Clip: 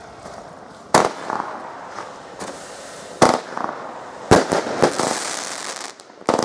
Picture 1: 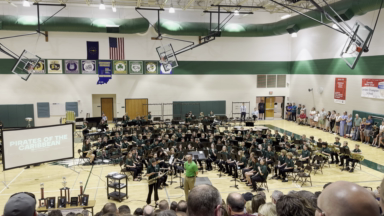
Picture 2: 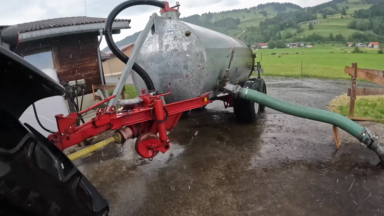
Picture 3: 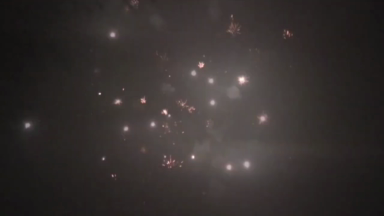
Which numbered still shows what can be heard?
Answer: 3